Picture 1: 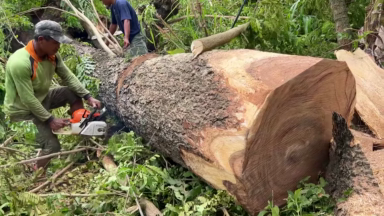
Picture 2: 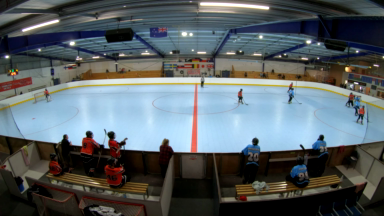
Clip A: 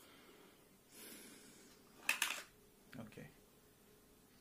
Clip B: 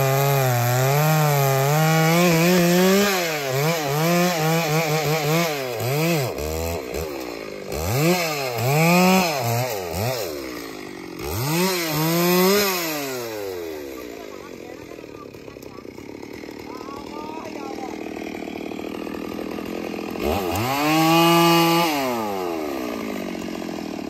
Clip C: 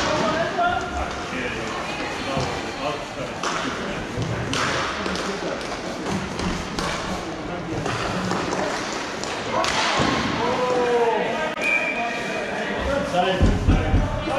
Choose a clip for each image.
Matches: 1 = B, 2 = C